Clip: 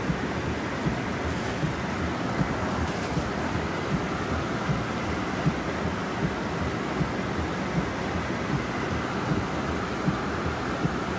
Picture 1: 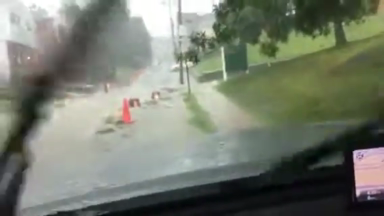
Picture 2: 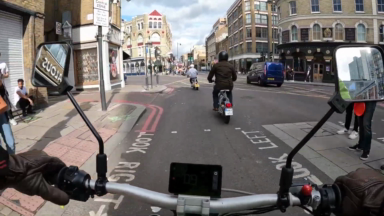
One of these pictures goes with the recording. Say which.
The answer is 1